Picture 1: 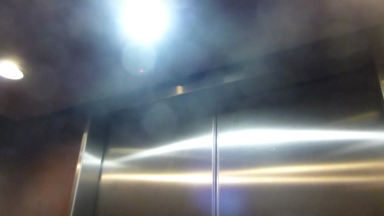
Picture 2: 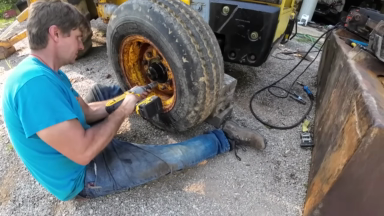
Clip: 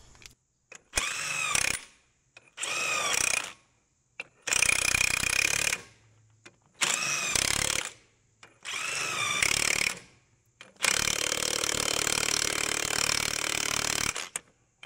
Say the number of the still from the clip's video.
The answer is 2